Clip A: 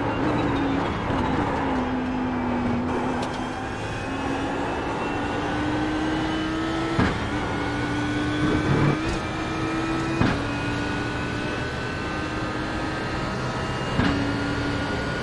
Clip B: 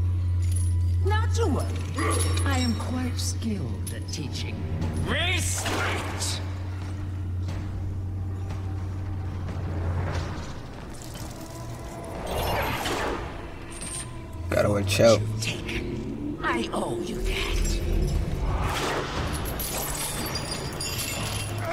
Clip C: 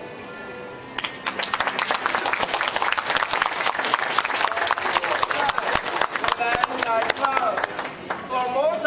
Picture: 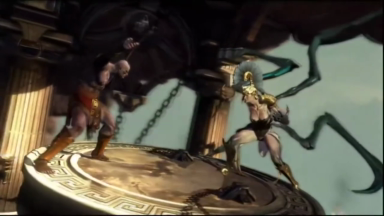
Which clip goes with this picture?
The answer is B